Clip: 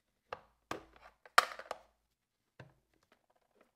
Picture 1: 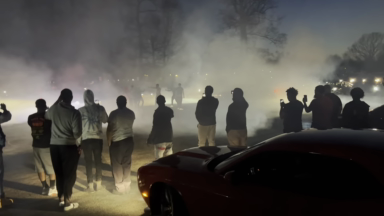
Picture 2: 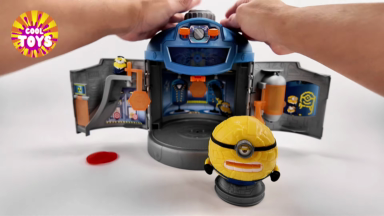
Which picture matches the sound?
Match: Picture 2